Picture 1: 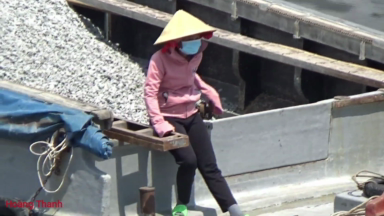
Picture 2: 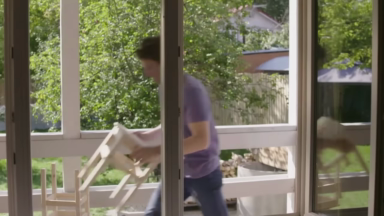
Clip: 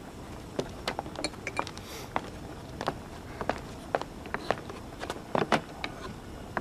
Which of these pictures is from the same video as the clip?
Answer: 2